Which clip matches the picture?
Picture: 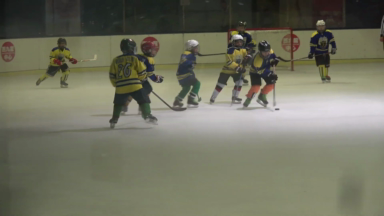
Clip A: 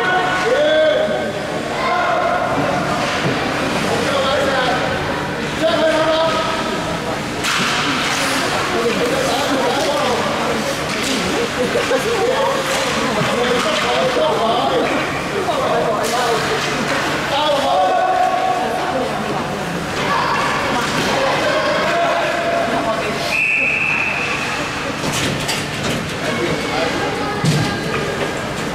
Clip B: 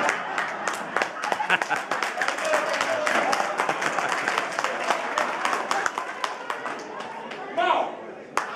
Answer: A